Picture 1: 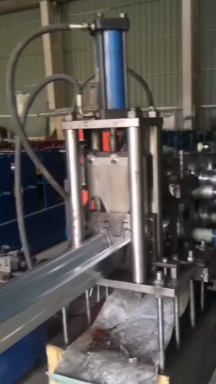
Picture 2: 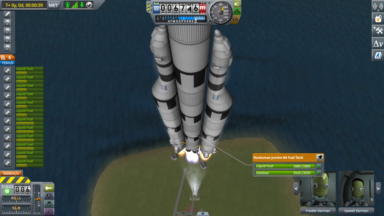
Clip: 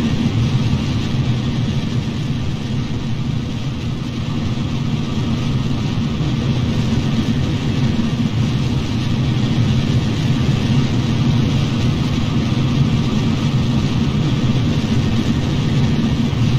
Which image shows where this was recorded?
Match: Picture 2